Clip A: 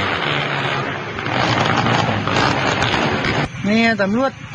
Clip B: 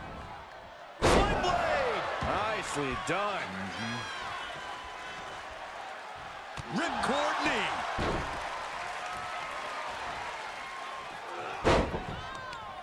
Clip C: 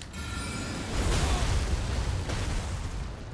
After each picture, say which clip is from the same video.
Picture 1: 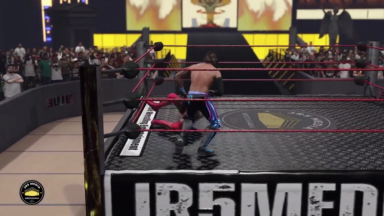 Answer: B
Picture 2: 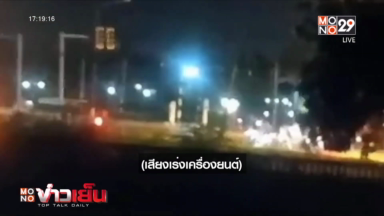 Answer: A